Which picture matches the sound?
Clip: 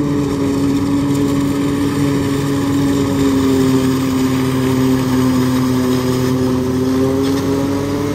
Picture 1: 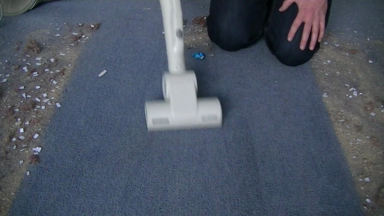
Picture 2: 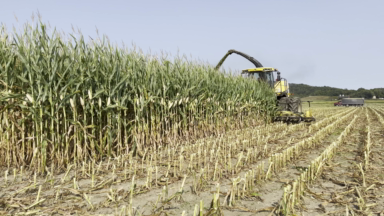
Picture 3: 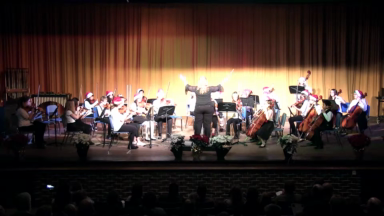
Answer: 2